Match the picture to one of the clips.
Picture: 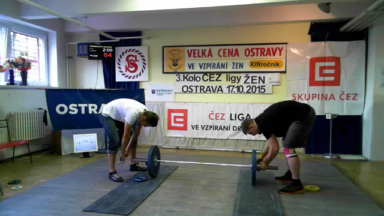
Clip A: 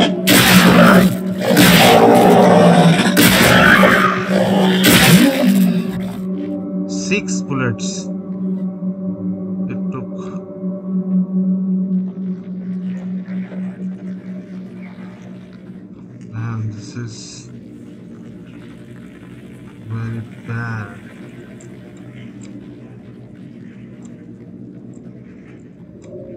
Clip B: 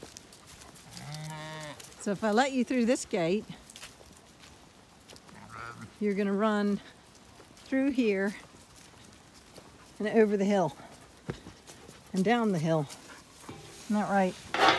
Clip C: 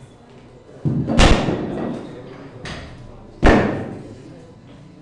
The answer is C